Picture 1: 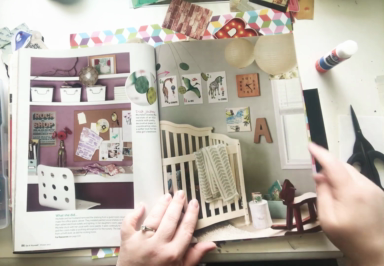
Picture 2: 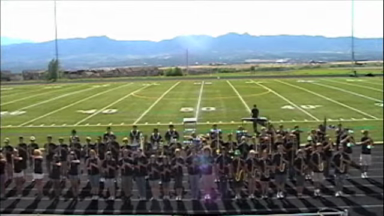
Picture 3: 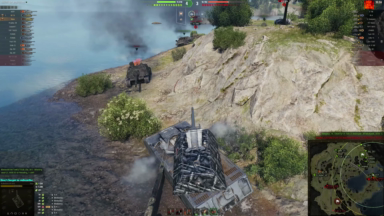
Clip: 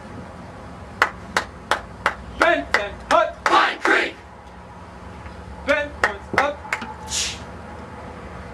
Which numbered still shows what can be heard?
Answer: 2